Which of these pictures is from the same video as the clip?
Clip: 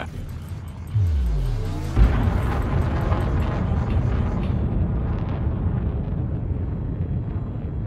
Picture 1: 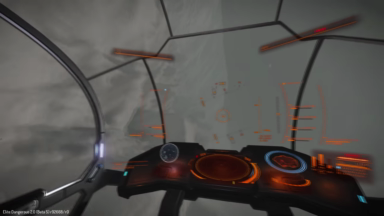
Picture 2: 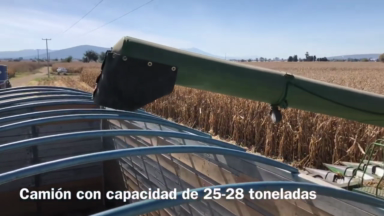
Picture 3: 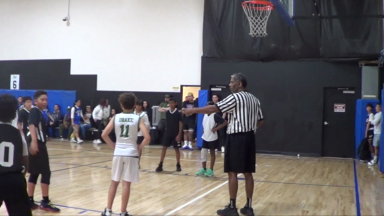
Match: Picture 1